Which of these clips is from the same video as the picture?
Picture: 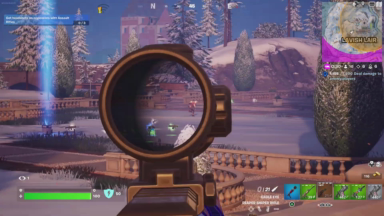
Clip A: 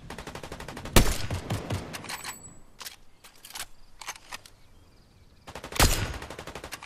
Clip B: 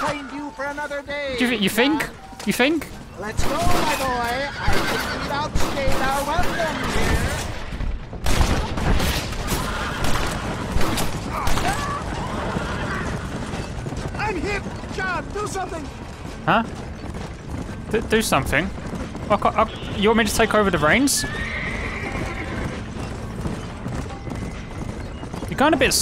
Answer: A